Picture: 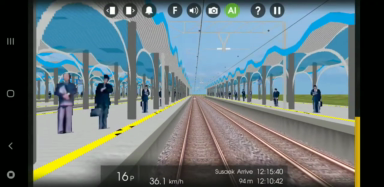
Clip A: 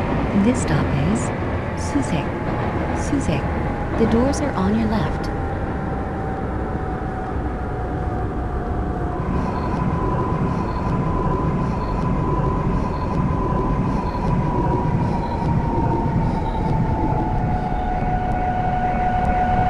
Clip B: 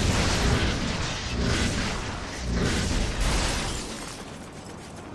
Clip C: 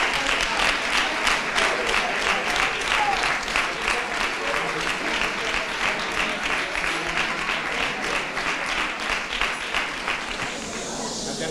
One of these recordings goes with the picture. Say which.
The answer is A